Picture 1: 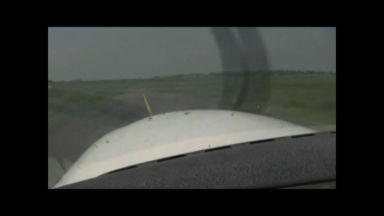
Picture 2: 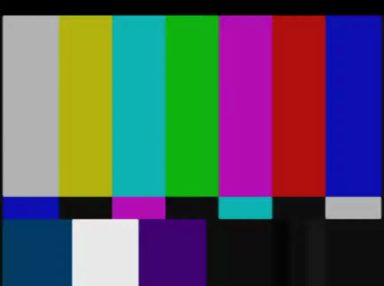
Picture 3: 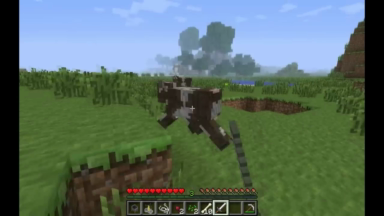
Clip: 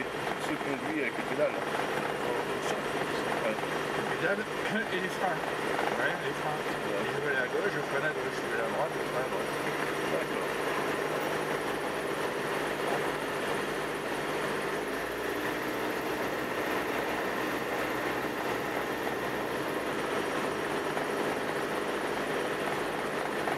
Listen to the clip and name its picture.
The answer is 1